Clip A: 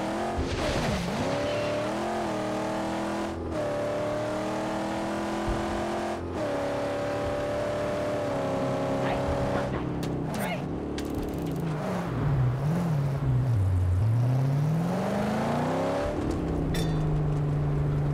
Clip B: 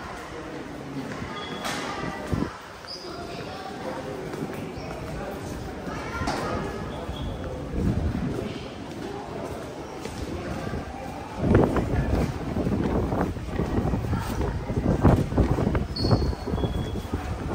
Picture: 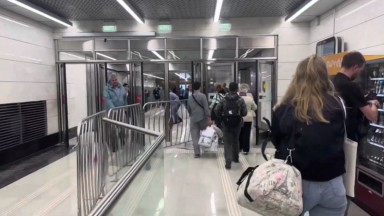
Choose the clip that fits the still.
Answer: B